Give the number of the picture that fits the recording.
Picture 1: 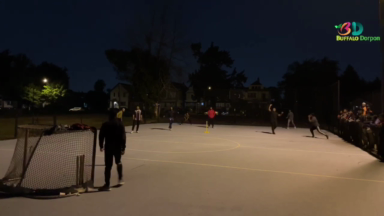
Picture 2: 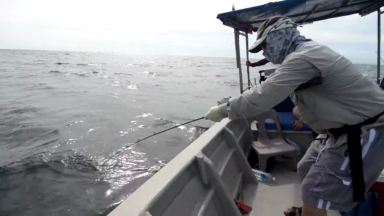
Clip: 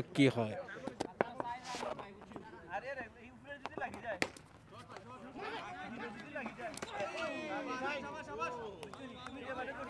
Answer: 1